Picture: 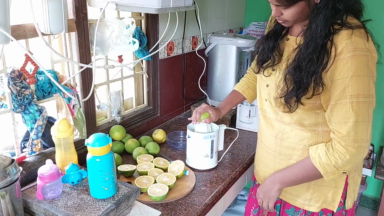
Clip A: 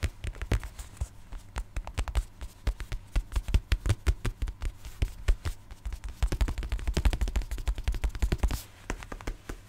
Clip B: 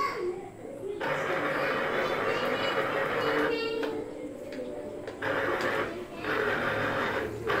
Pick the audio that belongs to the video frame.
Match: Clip B